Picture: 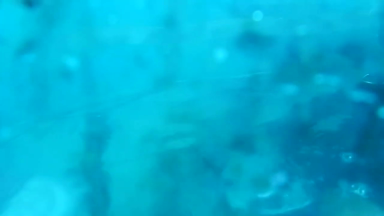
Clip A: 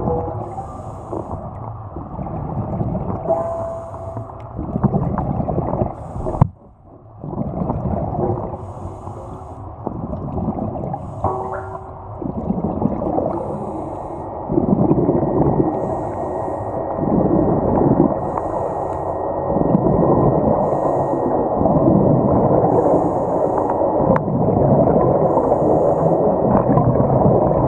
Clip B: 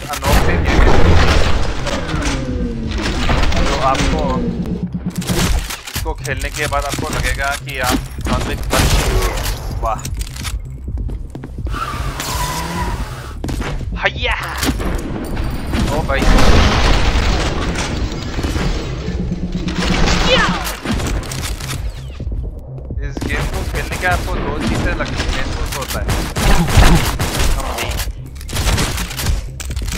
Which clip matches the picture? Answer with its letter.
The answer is A